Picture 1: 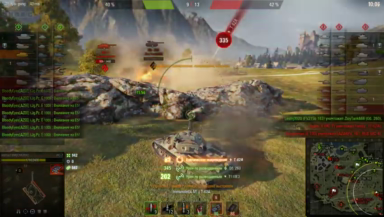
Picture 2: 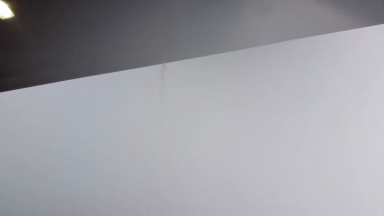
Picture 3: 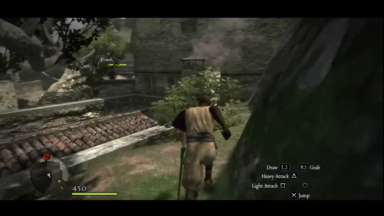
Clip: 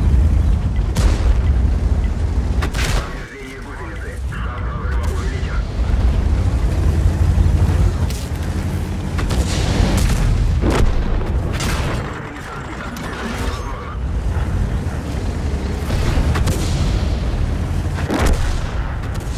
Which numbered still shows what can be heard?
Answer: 1